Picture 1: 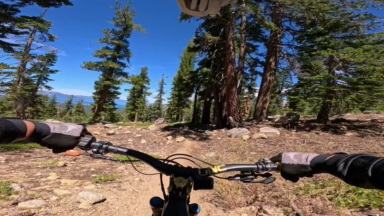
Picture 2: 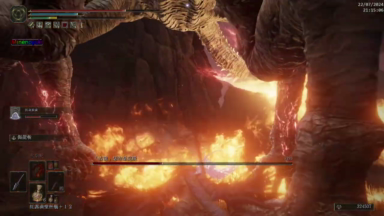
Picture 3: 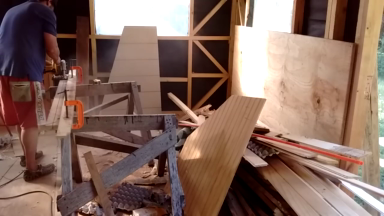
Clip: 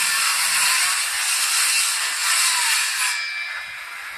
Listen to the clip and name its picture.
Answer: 3